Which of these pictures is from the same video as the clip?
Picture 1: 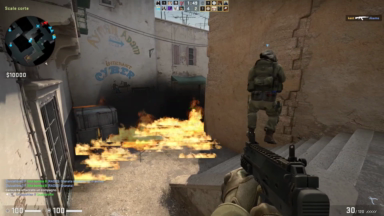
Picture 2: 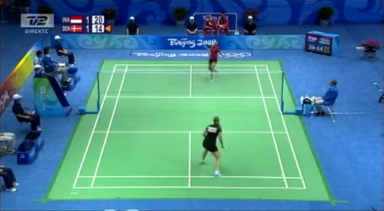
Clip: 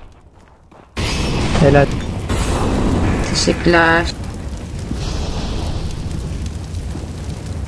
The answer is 1